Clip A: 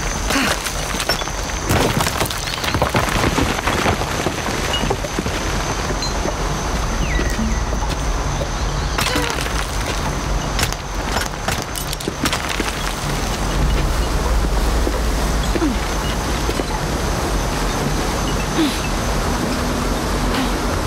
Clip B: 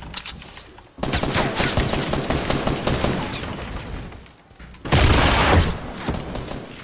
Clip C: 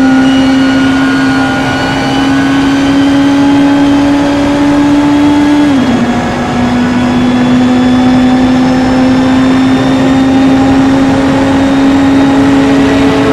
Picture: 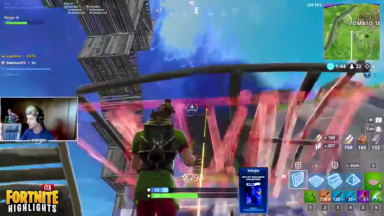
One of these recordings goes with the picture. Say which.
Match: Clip B